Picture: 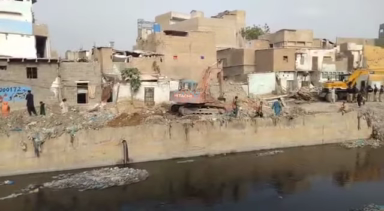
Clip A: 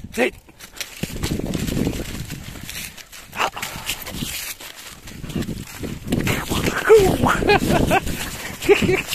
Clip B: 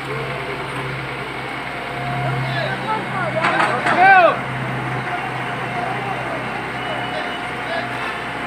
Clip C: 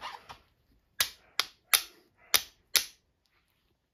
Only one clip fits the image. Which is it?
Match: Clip B